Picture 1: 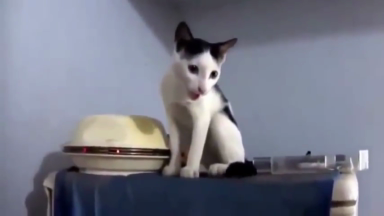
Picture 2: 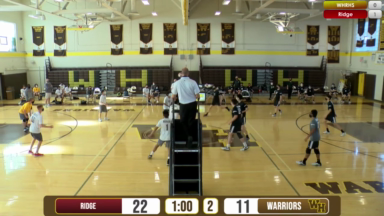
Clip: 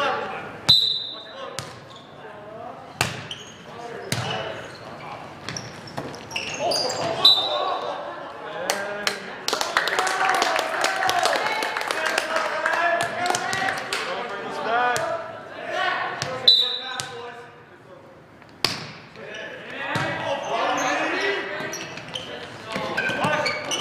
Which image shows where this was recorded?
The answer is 2